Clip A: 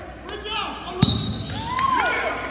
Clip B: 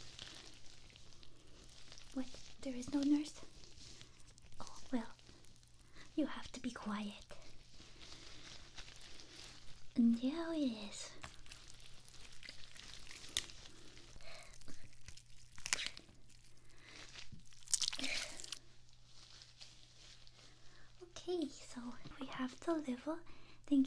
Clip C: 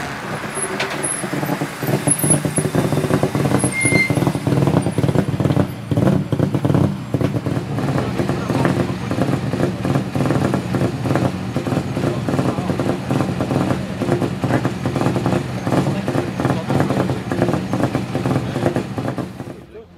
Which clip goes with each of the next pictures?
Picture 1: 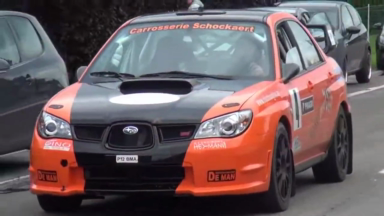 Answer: C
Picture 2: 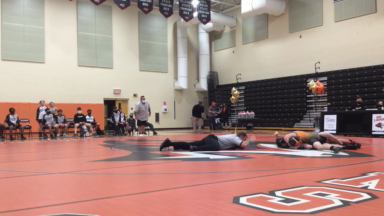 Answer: A